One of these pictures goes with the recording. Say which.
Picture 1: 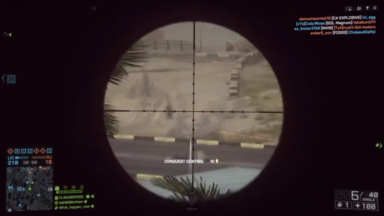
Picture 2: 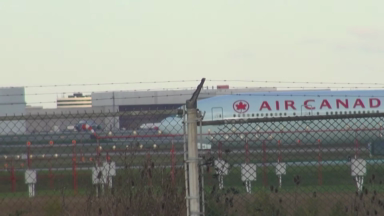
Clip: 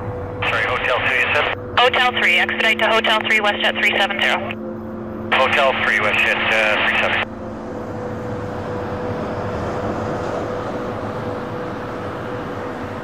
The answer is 2